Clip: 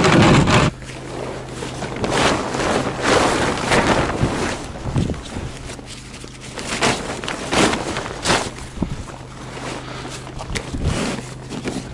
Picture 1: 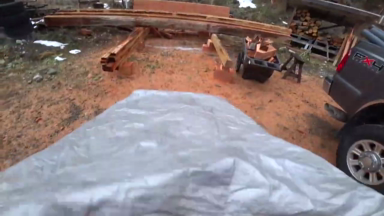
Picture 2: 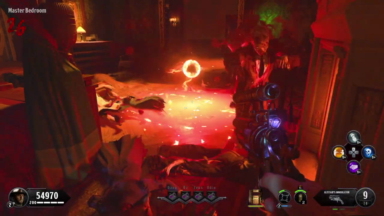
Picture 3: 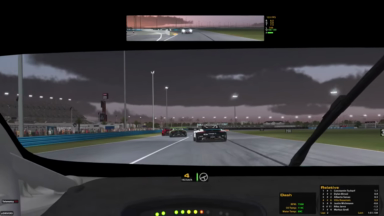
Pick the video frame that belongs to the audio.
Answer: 1